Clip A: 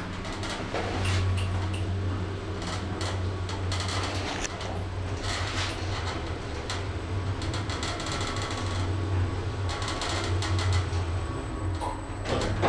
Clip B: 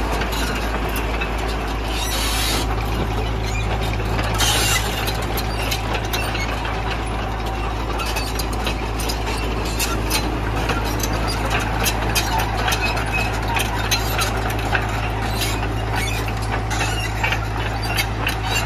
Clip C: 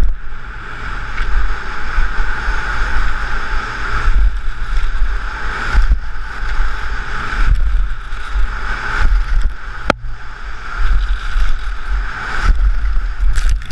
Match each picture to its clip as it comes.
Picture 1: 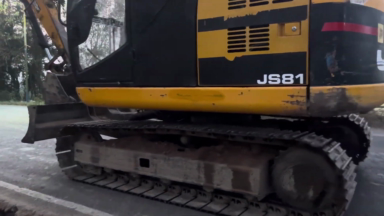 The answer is B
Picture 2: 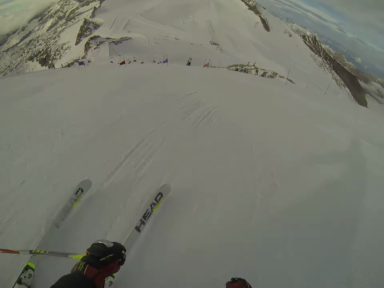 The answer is C